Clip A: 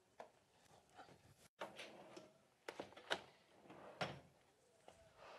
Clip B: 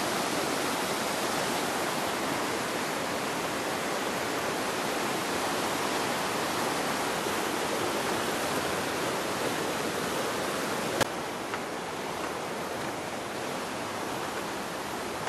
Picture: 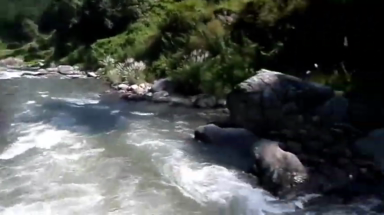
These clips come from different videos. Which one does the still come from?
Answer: B